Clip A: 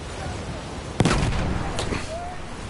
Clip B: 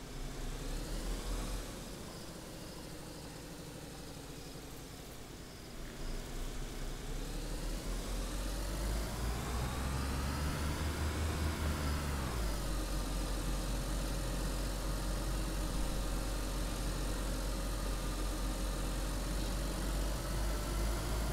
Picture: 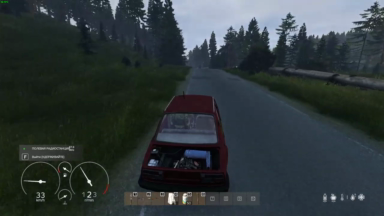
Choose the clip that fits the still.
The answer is B